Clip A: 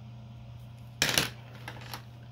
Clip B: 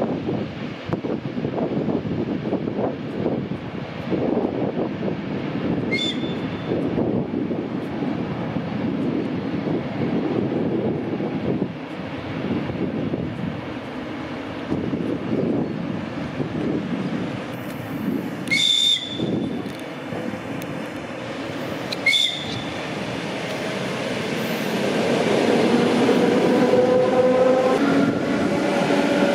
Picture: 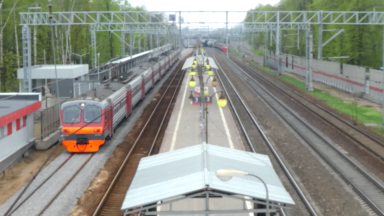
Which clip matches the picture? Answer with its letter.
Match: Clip B